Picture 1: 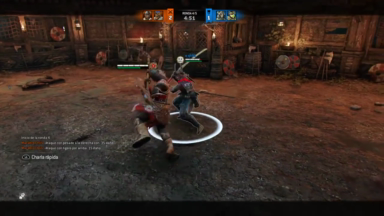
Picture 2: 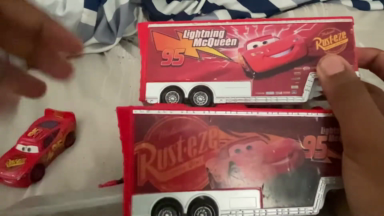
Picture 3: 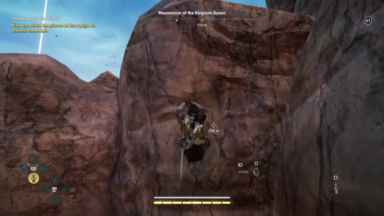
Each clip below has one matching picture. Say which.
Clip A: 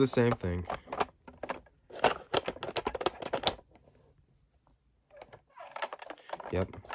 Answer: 2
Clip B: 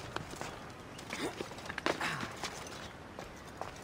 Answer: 3